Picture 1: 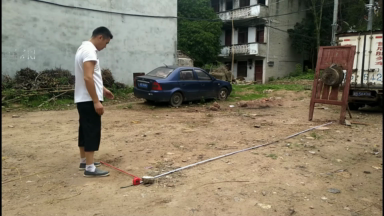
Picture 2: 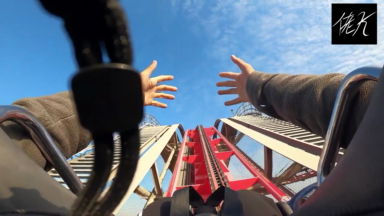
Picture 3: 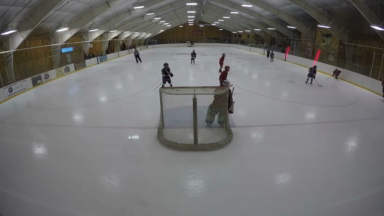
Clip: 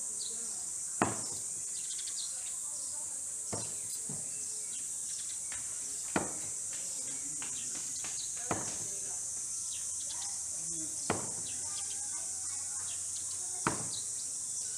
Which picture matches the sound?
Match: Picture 1